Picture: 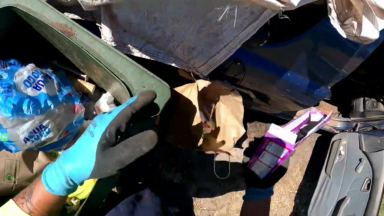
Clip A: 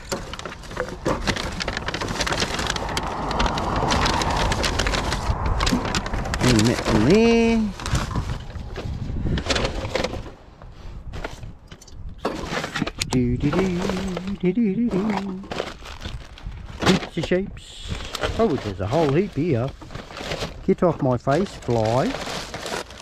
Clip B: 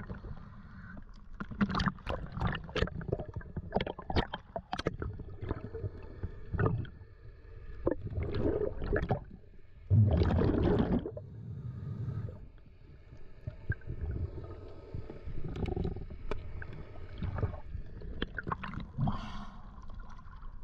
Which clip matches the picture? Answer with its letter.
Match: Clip A